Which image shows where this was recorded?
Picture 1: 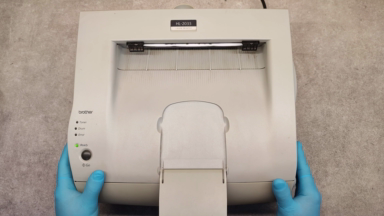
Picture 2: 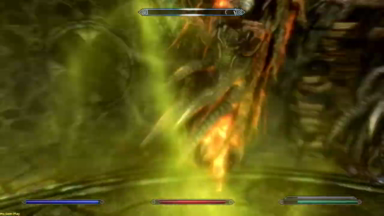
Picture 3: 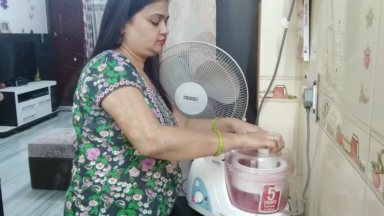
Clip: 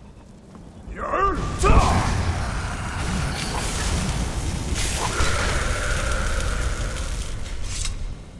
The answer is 2